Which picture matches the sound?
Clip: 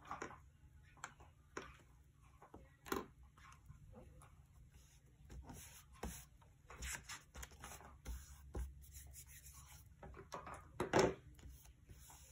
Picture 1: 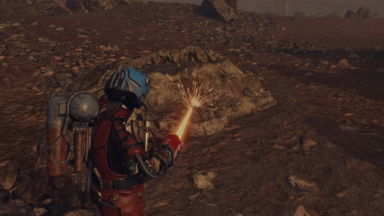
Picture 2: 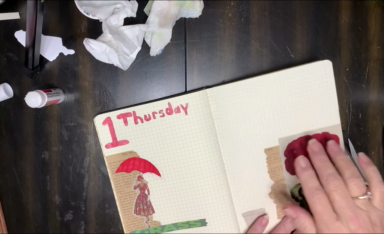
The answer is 2